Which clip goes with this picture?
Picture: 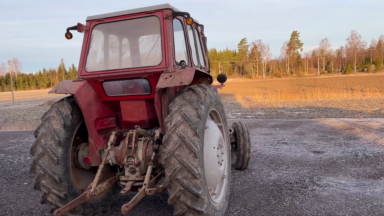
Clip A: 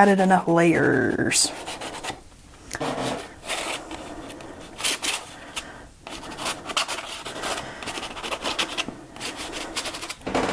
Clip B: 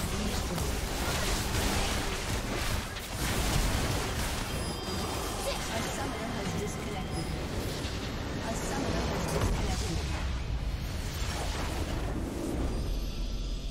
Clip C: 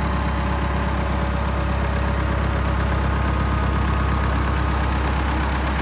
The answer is C